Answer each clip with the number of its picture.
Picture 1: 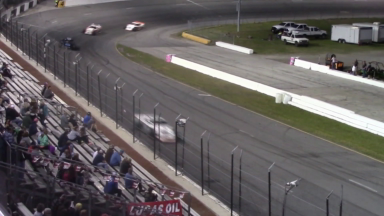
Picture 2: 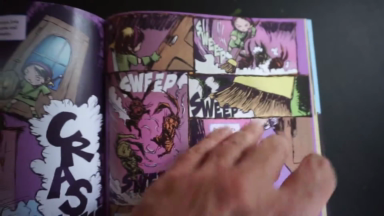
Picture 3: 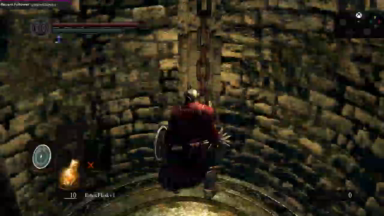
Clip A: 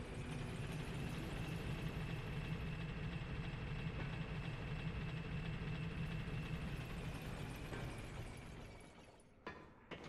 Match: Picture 3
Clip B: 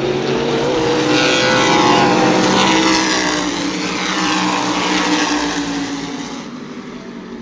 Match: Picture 1